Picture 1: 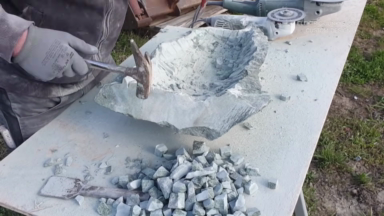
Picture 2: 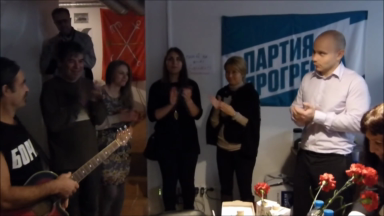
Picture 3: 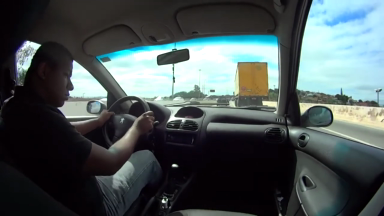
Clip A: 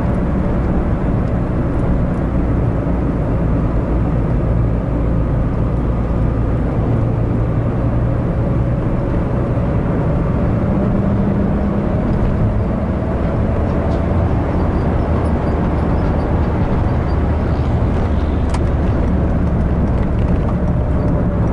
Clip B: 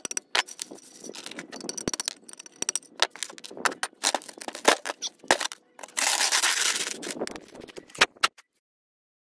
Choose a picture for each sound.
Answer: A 3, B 1